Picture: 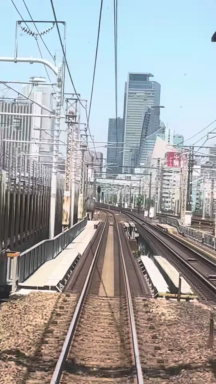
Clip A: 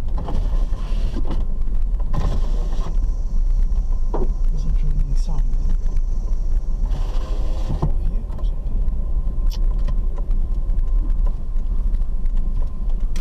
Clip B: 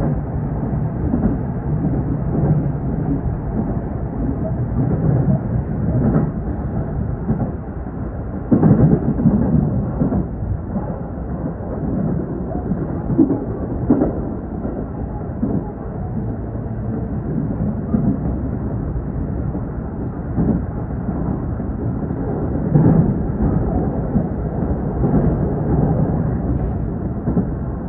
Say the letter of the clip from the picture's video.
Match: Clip B